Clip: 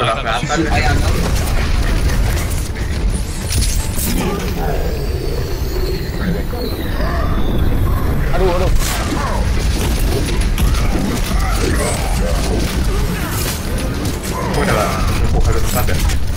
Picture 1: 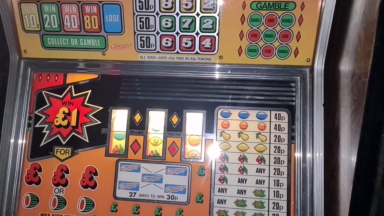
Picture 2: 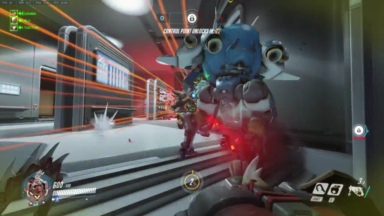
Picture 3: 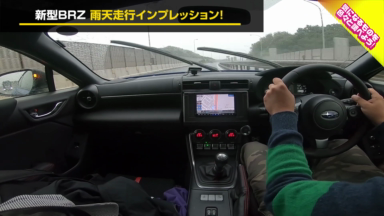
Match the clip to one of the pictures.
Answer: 2